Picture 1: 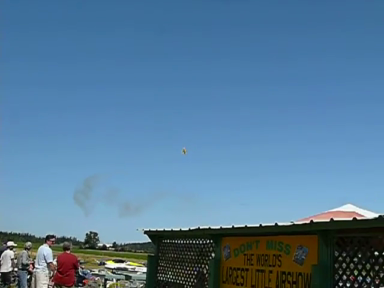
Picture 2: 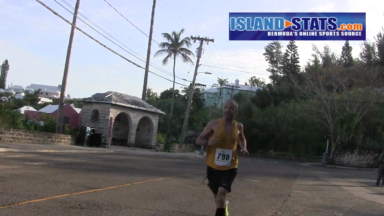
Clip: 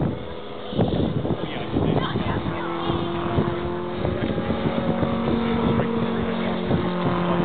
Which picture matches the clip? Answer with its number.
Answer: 1